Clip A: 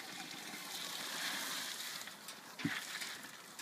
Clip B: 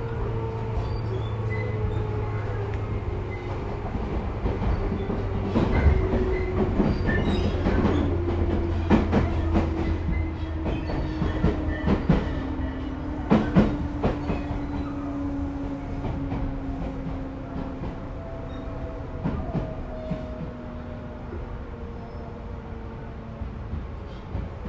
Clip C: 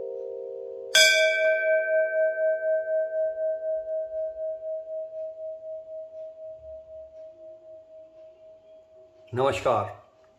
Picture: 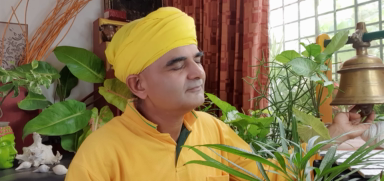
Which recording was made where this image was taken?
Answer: C